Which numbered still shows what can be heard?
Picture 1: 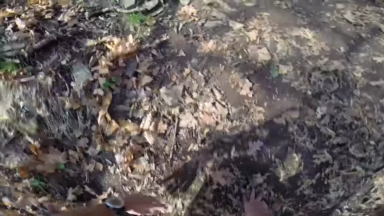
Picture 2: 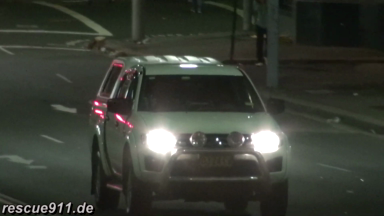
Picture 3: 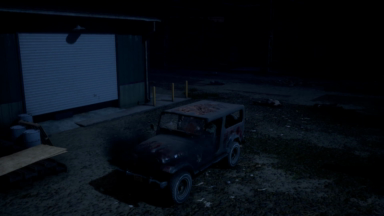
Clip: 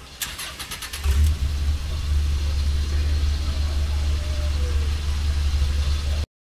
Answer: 3